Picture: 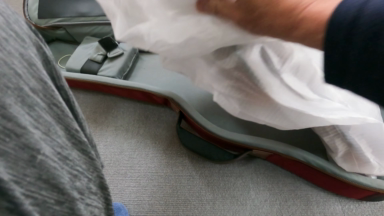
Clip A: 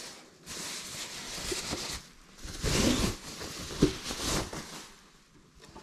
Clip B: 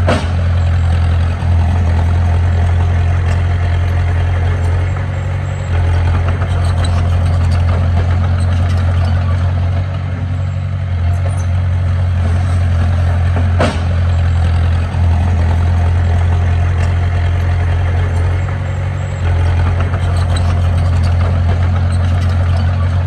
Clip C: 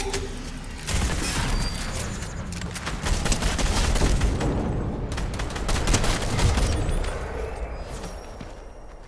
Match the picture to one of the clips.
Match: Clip A